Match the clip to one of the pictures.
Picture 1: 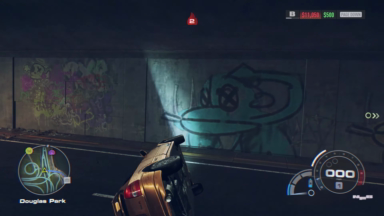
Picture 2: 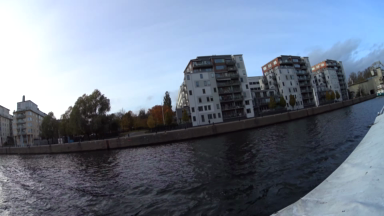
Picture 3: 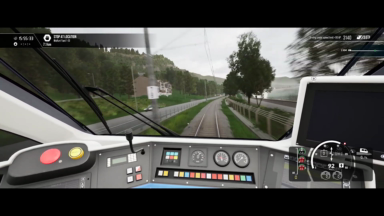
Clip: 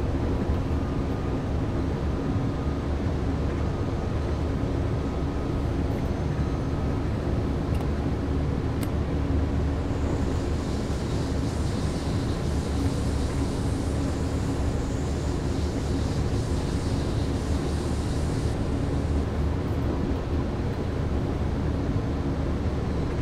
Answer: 3